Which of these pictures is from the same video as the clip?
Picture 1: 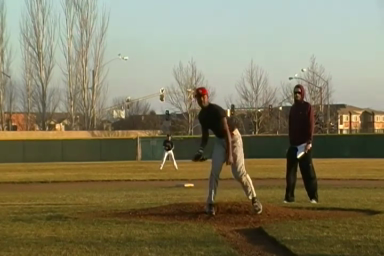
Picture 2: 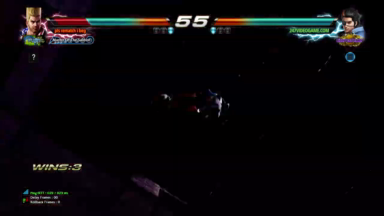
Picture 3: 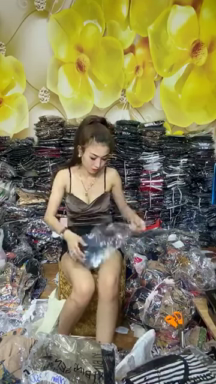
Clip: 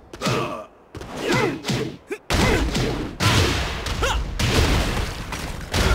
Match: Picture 2